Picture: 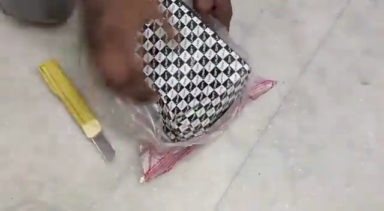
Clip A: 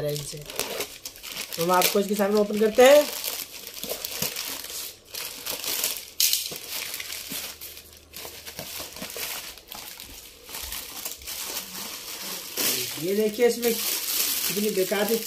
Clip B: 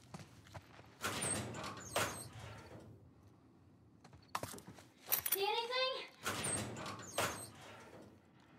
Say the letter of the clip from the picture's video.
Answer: A